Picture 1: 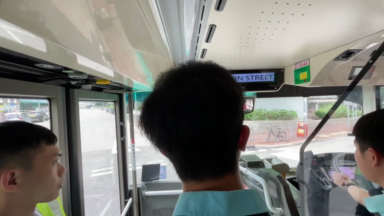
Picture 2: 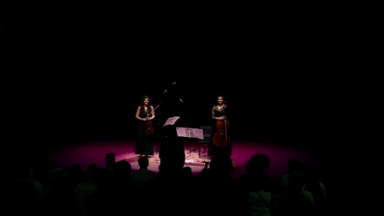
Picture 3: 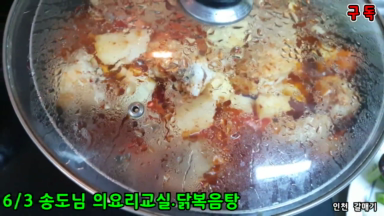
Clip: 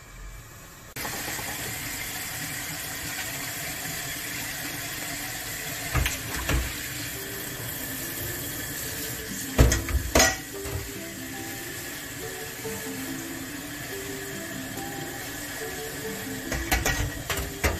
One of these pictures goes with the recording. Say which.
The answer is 3